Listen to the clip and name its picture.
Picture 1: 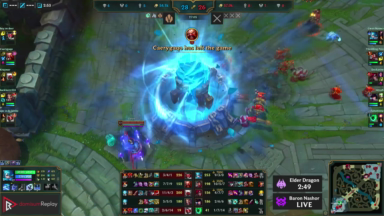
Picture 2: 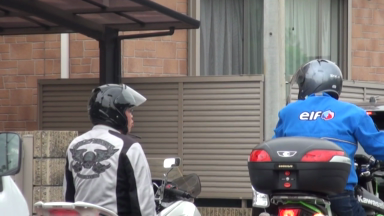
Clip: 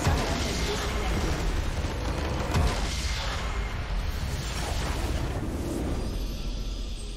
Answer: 1